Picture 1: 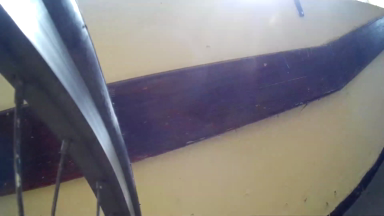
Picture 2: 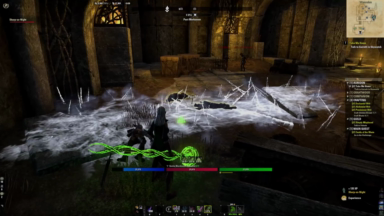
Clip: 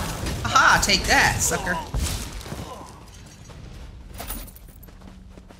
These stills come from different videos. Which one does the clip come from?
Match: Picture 2